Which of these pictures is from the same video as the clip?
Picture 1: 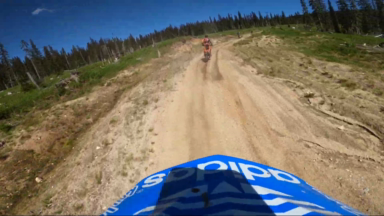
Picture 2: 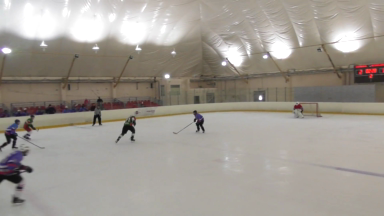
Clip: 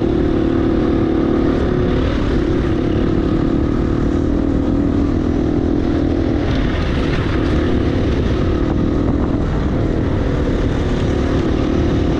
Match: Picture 1